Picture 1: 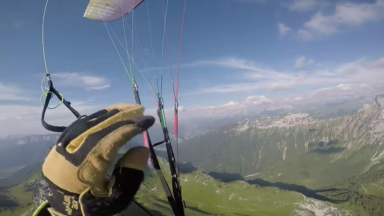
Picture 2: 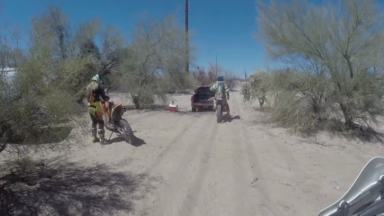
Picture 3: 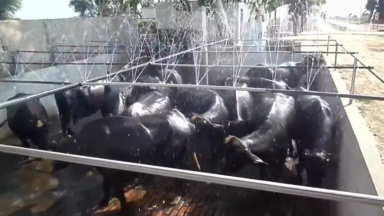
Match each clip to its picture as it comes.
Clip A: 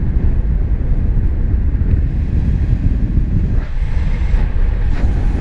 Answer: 1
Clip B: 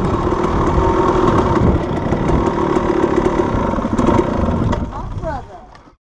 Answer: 2